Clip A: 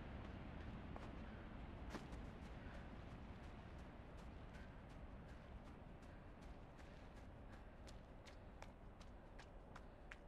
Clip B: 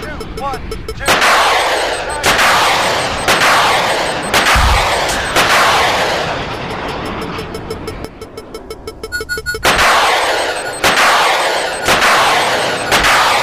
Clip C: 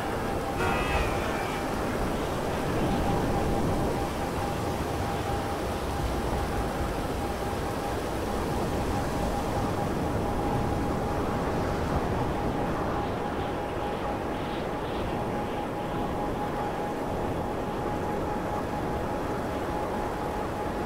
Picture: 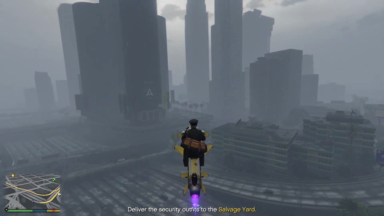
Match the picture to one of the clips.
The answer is C